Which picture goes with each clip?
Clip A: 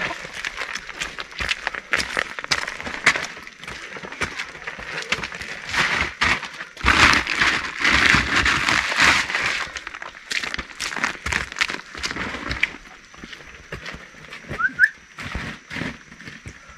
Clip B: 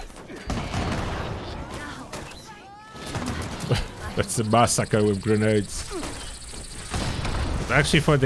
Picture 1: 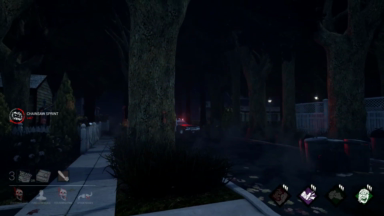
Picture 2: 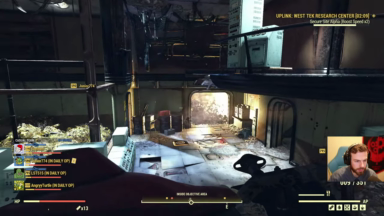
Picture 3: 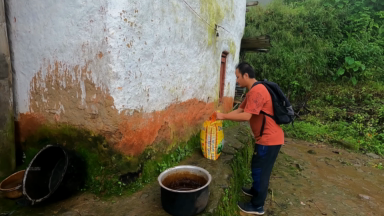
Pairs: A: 3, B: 2